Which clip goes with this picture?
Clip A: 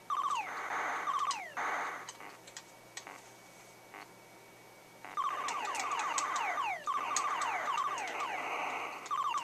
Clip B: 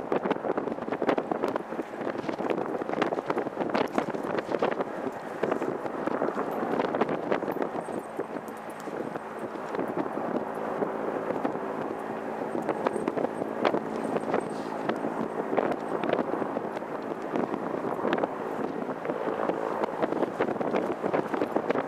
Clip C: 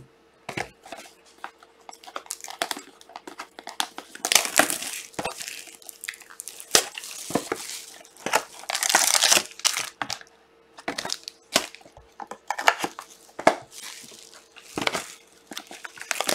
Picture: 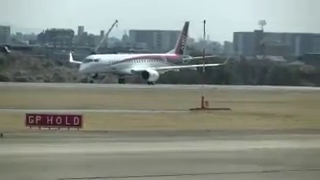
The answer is B